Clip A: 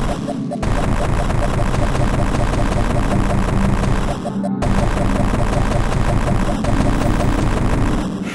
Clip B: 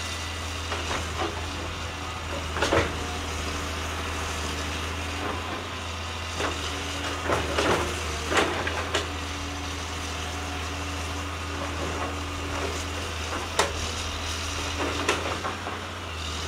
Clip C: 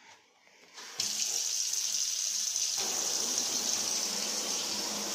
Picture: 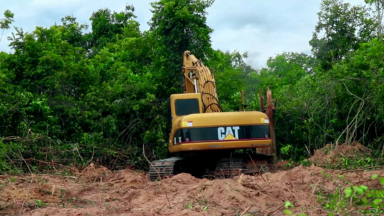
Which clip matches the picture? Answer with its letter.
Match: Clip B